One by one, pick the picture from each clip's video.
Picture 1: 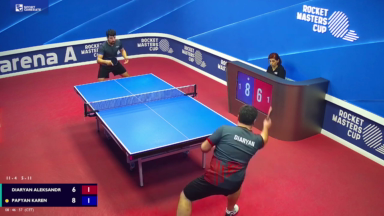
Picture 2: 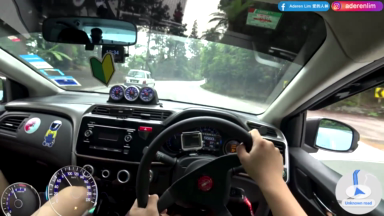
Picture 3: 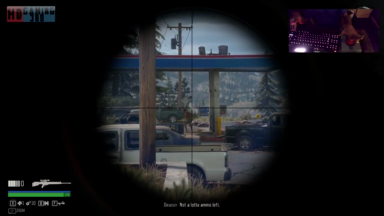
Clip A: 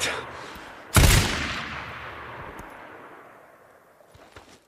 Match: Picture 3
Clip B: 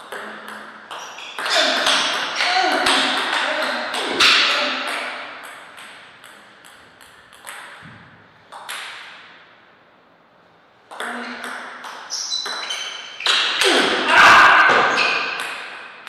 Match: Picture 1